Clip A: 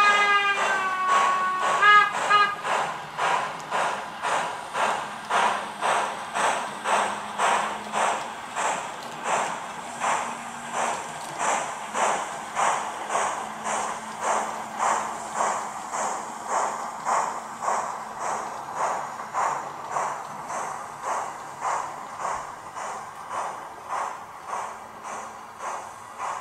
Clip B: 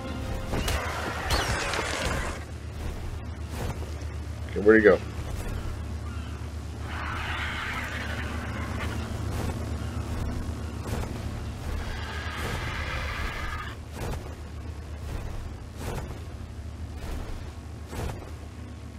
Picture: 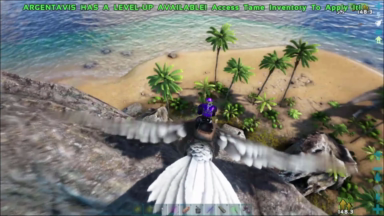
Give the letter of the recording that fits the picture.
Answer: B